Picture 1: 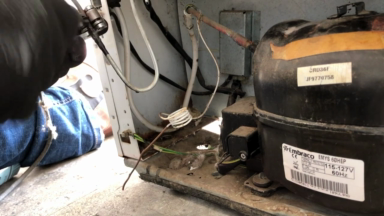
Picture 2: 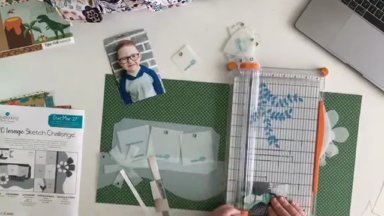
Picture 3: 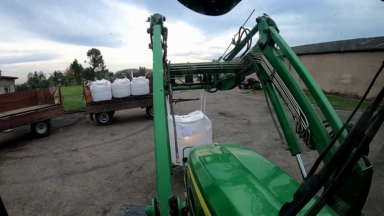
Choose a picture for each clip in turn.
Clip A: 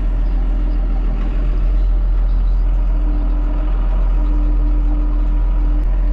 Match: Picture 3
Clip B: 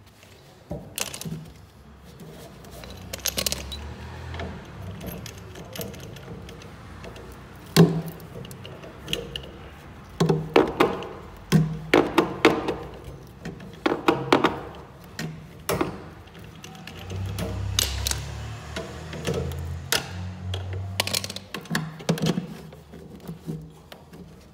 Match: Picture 1